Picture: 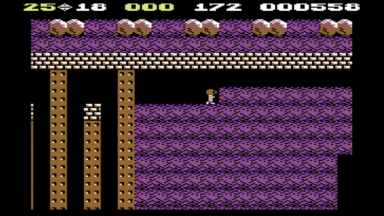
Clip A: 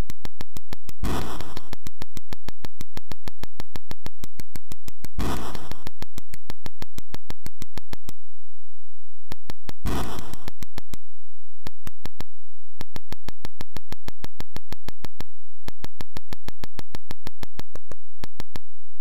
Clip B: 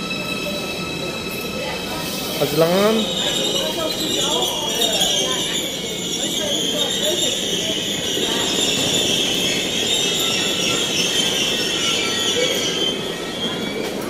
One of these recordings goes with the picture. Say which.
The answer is A